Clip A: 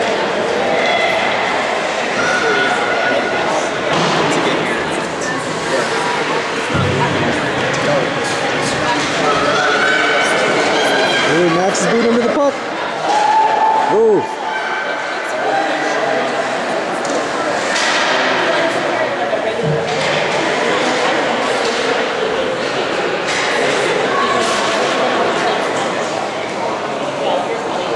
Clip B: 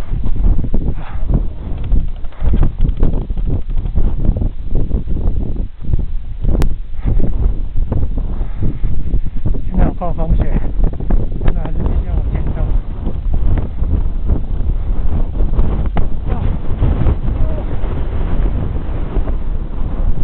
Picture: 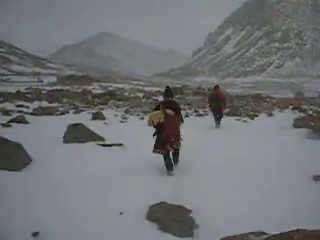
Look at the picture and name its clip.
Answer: B